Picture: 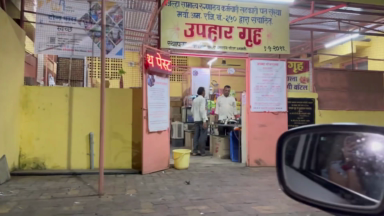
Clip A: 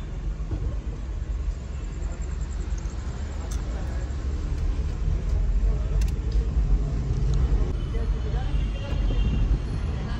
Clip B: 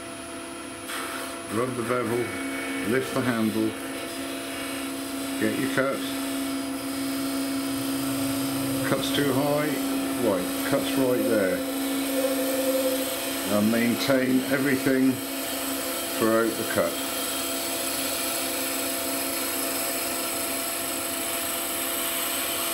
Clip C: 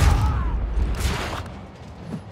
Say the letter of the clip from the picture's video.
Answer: A